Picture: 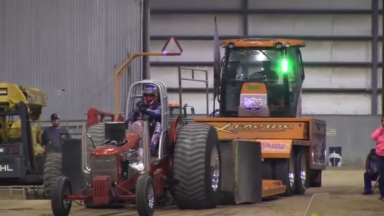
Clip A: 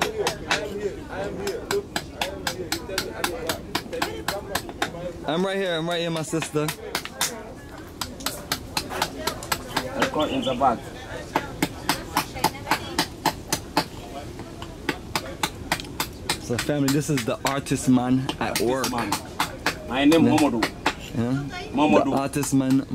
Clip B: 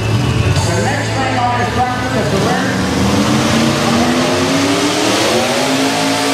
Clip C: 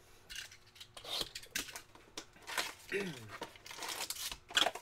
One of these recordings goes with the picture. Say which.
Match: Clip B